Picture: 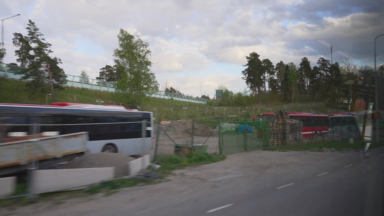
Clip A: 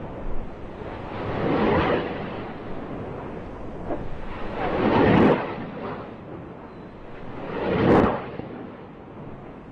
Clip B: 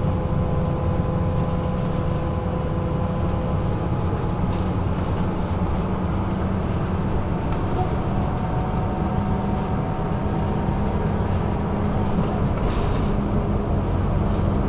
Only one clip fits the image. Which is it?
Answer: B